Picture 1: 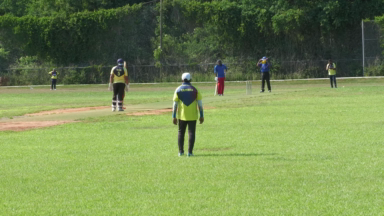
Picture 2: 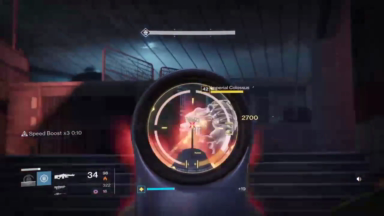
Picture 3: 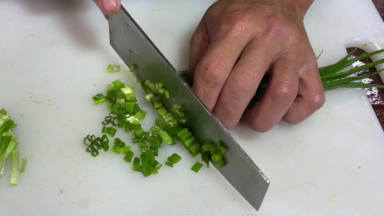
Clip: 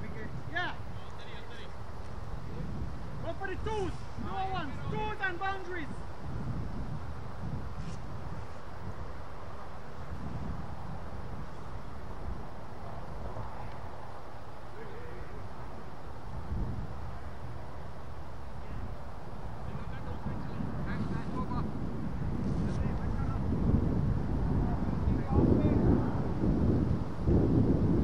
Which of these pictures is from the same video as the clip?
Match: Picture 1